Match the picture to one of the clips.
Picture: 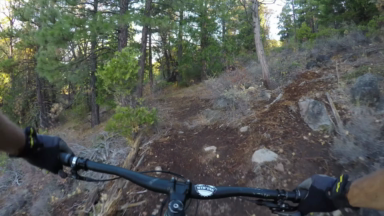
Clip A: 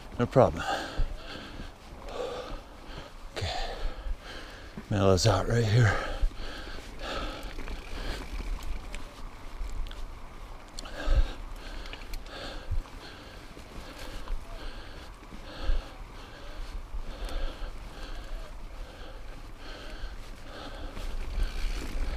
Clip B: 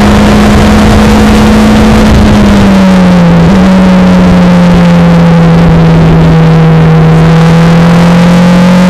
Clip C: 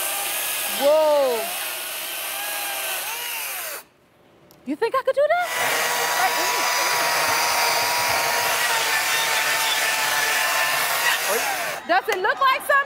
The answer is A